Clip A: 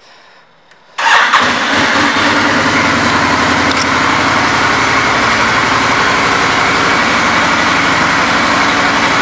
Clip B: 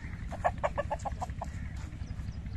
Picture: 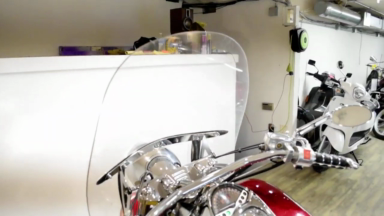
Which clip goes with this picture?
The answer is A